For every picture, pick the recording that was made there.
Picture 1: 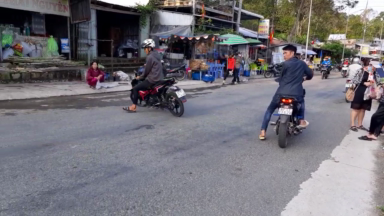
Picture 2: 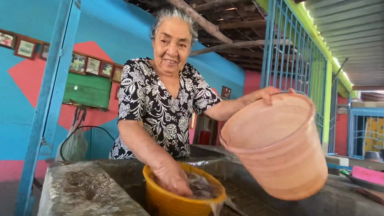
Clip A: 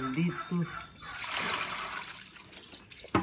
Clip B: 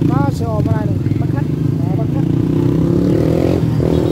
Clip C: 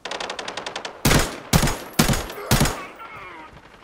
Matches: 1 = B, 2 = A